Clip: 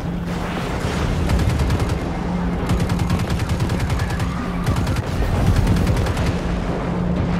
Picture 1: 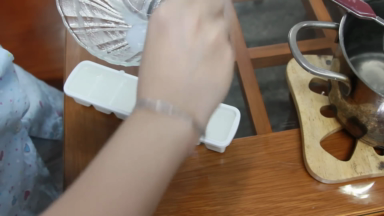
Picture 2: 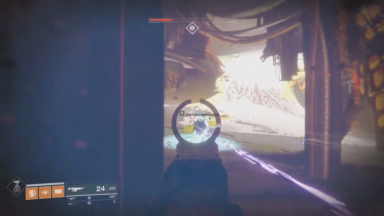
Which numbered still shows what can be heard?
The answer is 2